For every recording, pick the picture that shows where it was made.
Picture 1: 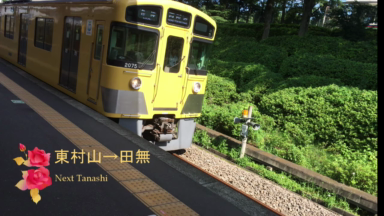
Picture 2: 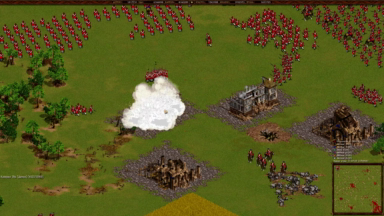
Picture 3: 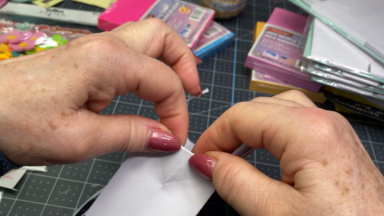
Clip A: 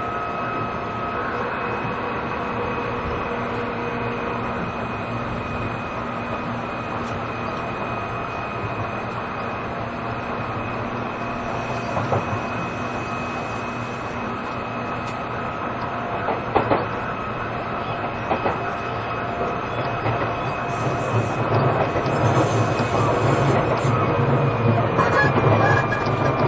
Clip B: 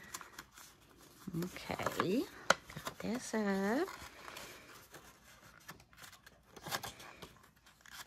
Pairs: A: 1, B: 3